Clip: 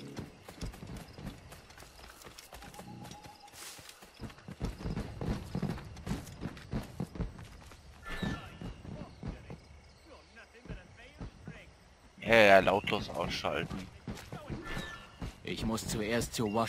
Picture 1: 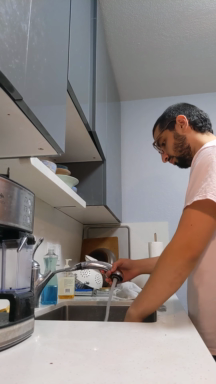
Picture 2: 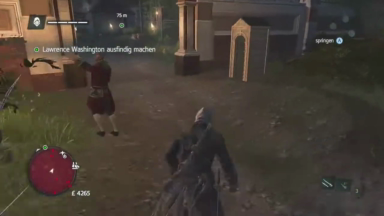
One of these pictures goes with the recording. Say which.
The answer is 2